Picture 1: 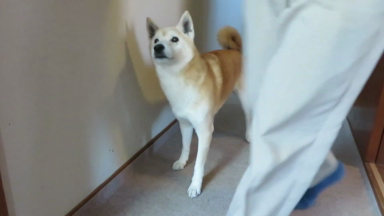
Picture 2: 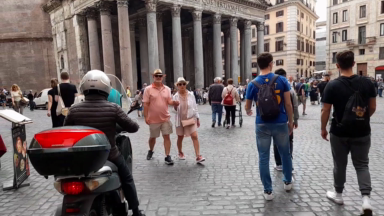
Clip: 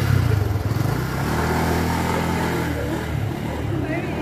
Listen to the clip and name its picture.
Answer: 2